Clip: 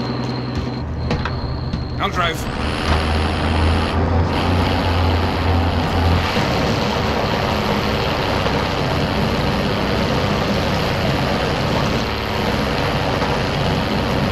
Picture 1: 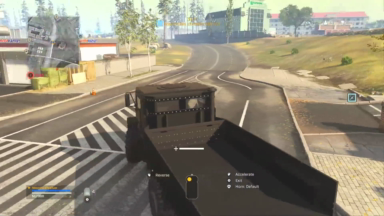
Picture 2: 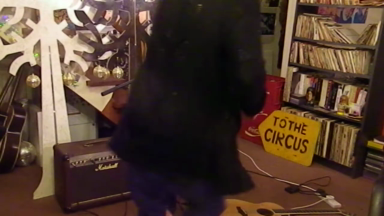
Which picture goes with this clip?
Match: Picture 1